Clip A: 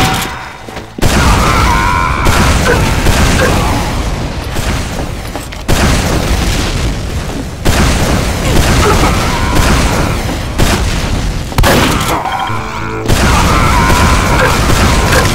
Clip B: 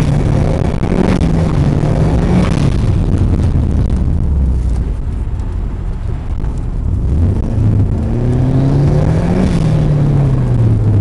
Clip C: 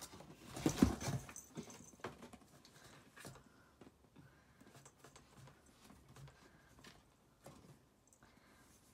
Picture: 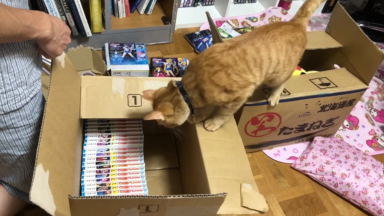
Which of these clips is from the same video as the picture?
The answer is C